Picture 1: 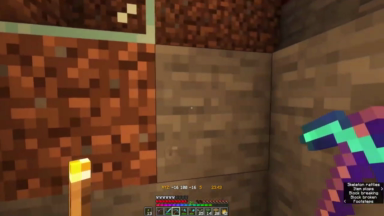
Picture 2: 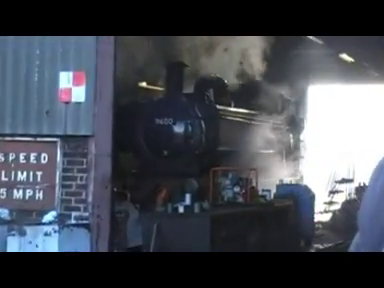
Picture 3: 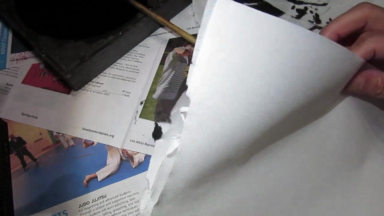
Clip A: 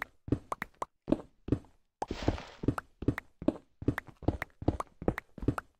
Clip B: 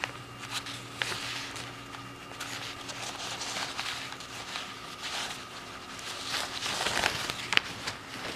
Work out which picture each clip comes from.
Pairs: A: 1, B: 3